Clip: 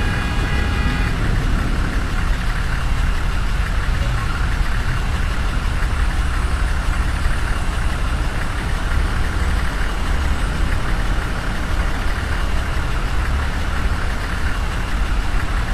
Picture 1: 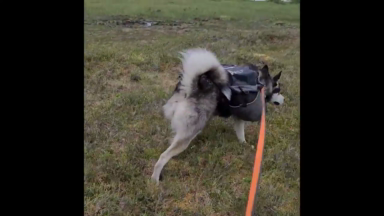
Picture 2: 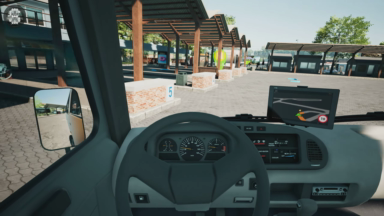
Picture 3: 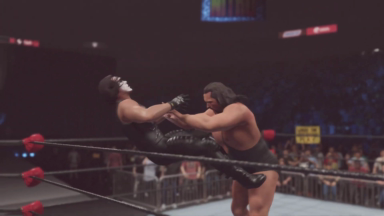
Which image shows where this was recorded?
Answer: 2